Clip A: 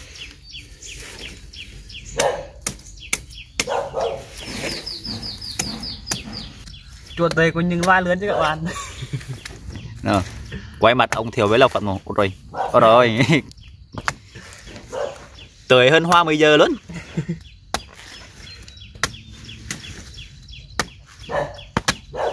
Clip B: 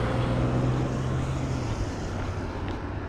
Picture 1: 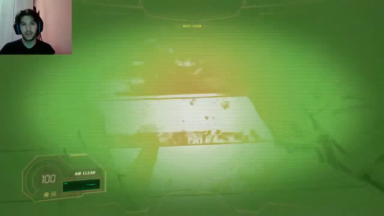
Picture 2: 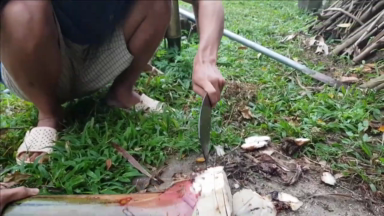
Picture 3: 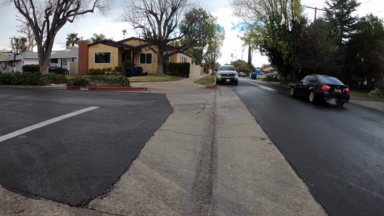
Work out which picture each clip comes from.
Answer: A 2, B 3